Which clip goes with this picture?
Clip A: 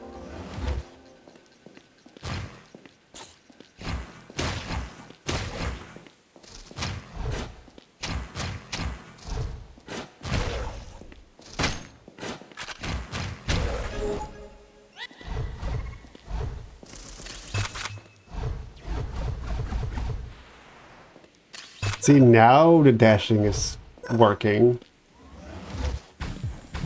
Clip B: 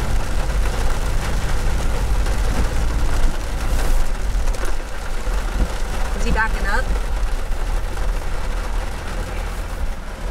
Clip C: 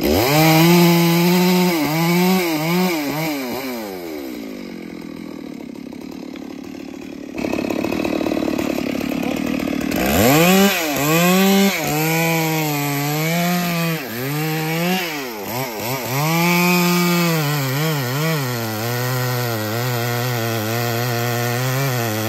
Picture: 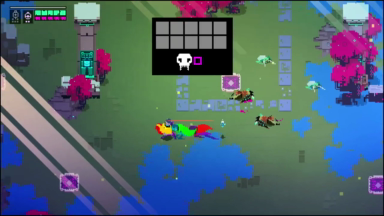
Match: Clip A